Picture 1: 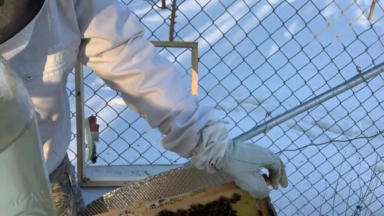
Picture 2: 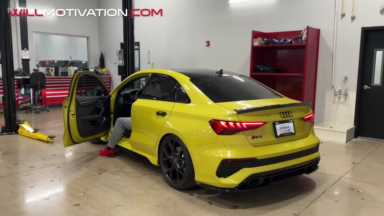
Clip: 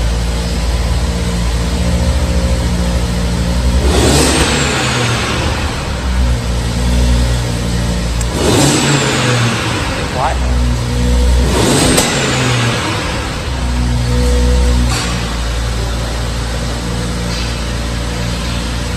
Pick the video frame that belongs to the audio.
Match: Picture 2